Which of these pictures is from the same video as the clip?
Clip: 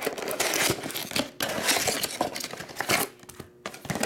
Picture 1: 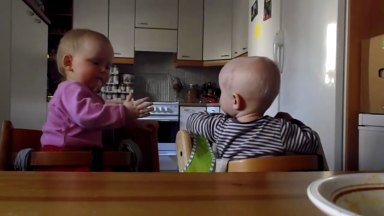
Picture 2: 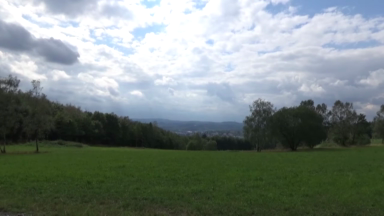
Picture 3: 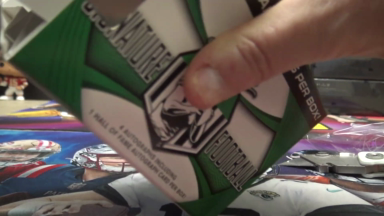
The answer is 3